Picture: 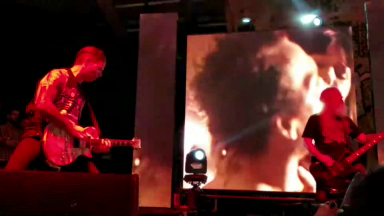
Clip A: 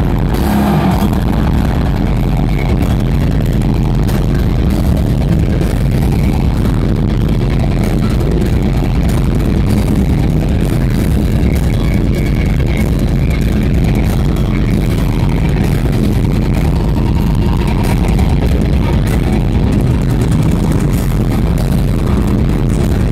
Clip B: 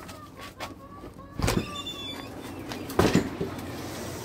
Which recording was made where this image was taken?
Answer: A